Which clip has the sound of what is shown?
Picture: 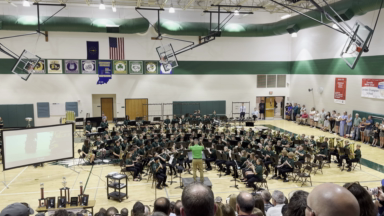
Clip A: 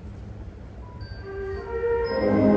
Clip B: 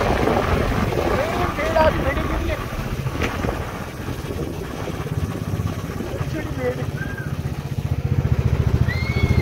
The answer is A